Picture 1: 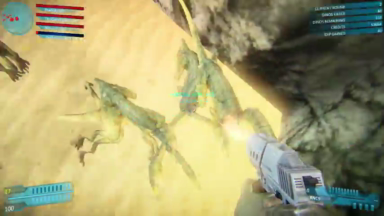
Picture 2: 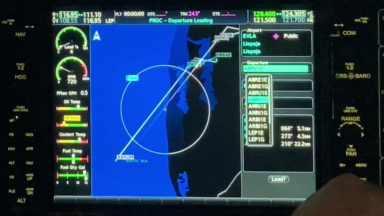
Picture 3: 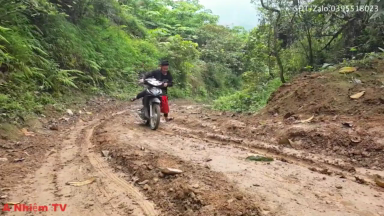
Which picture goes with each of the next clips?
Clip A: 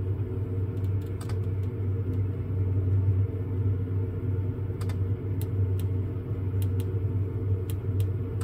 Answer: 2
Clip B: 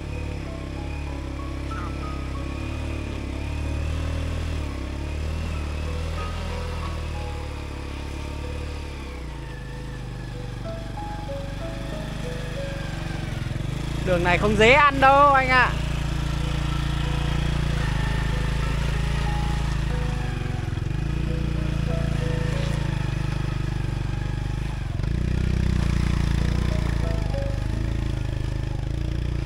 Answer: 3